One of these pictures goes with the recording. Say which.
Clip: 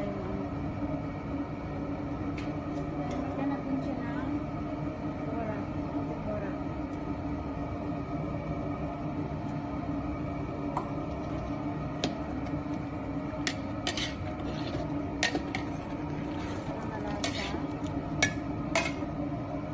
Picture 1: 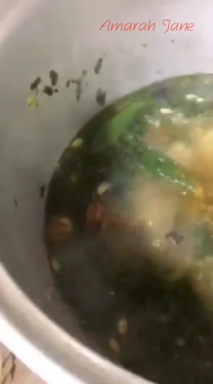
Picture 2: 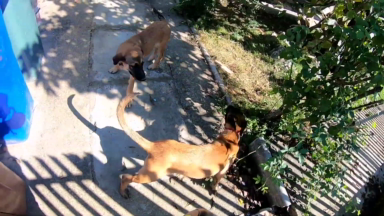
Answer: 1